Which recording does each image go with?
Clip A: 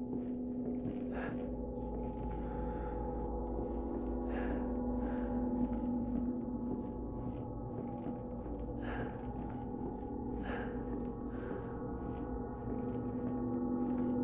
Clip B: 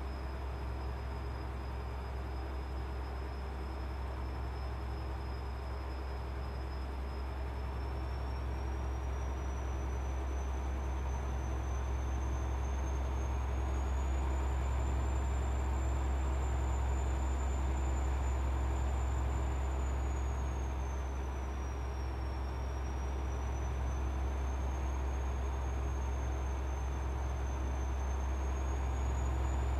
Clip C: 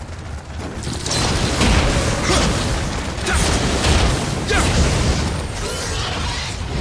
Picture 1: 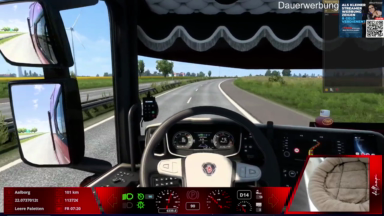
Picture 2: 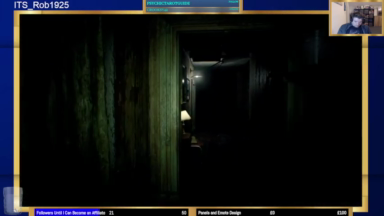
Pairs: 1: B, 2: A